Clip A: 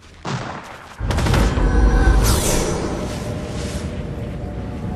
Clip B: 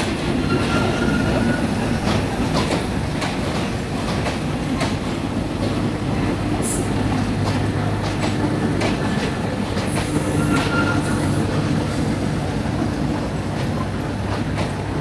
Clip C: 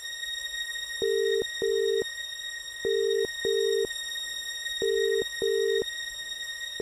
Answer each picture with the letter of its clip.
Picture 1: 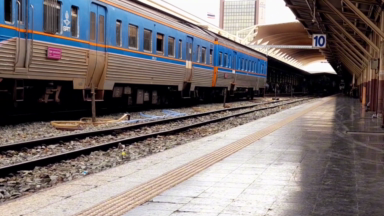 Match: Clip B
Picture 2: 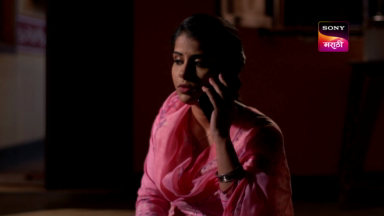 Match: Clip C